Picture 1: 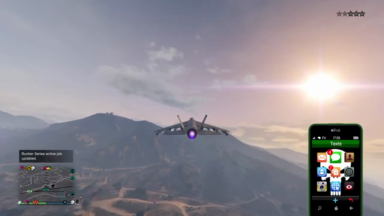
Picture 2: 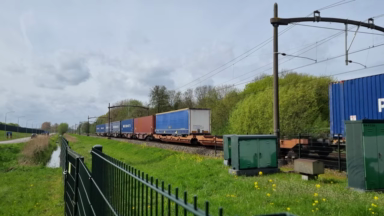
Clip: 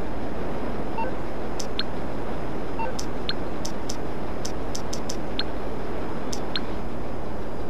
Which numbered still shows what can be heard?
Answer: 1